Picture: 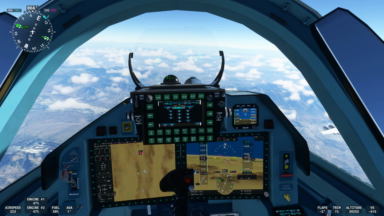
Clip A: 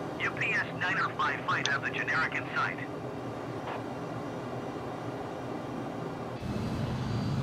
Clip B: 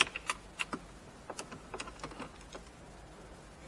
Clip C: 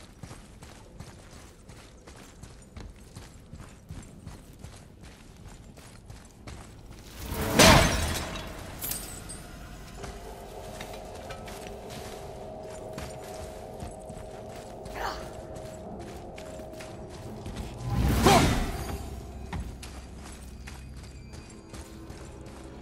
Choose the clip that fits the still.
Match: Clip A